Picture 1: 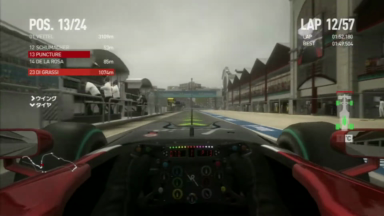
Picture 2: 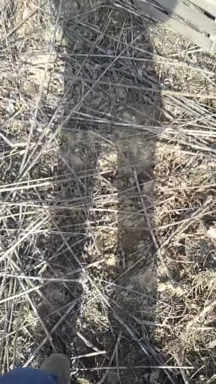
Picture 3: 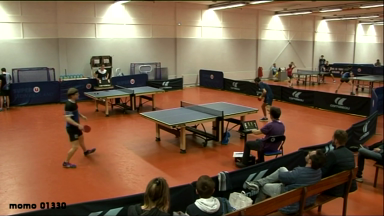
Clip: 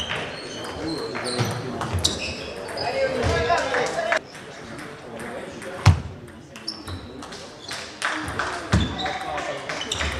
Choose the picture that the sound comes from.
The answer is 3